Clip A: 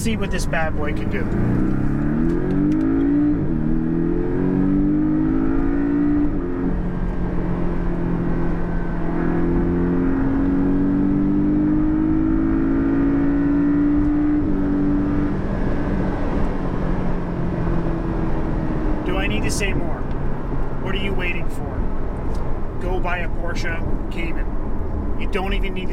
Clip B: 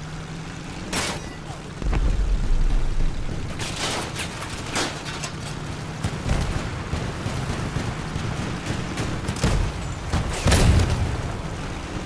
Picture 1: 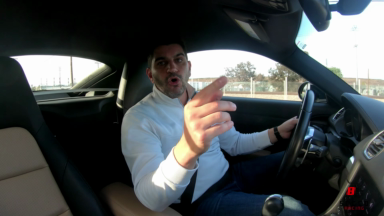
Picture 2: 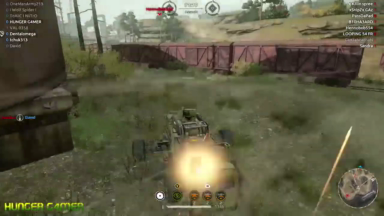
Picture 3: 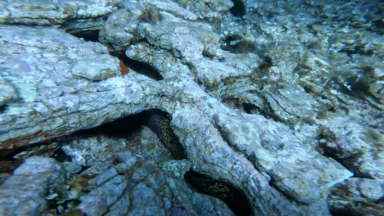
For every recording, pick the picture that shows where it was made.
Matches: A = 1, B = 2